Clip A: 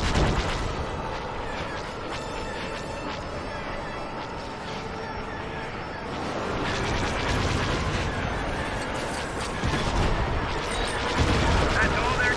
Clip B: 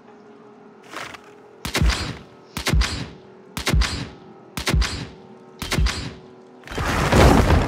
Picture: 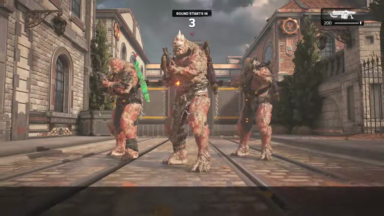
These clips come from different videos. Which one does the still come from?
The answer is B